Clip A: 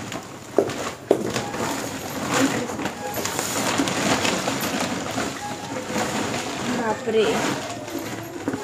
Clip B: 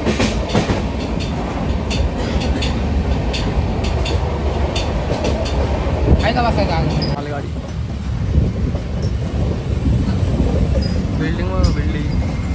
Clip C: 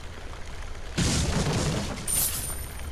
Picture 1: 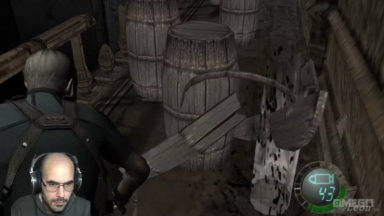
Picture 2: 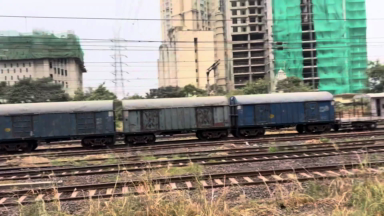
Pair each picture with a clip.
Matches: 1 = C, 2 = B